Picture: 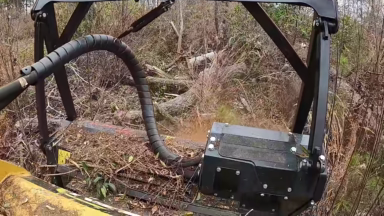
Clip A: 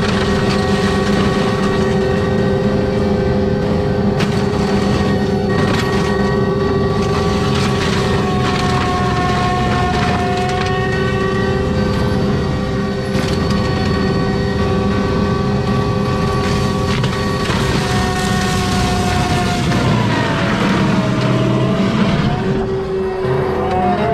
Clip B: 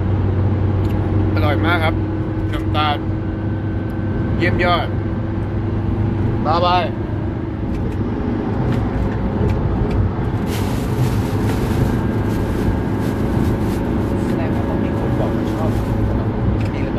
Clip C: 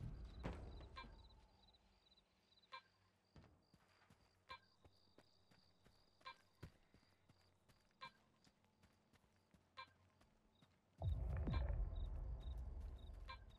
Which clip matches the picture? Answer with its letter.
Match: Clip A